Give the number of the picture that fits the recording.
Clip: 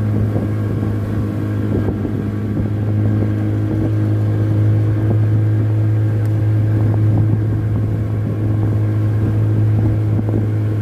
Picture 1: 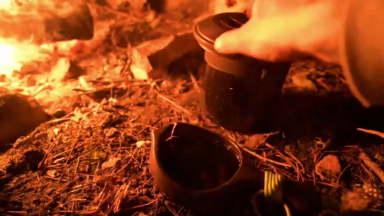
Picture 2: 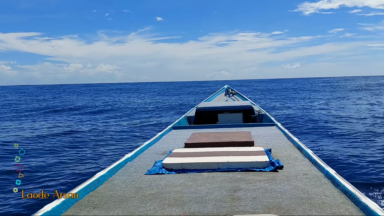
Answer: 2